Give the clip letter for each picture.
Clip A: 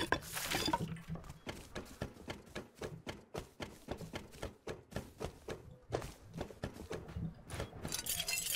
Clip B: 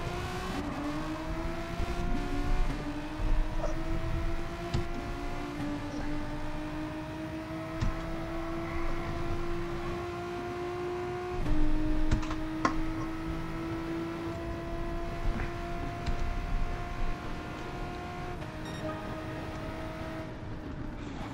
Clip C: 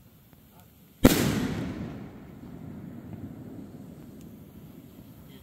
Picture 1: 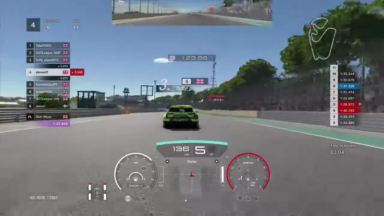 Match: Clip B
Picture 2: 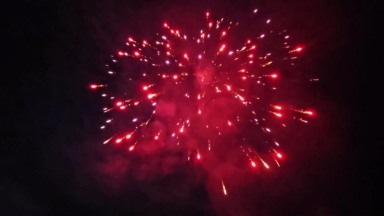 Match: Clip C